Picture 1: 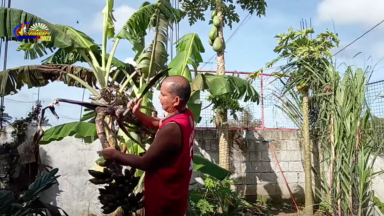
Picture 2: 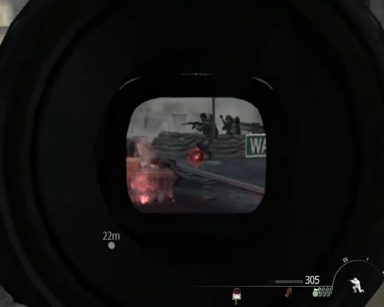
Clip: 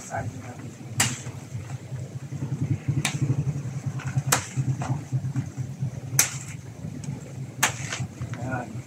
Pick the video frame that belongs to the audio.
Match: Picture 1